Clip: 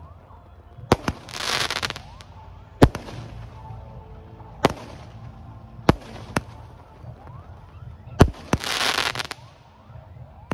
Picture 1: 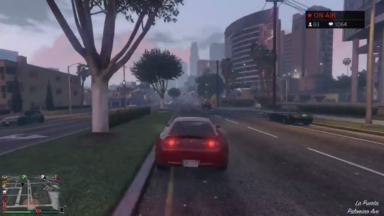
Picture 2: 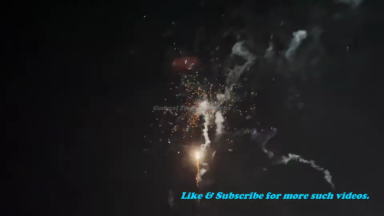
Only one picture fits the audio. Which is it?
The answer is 2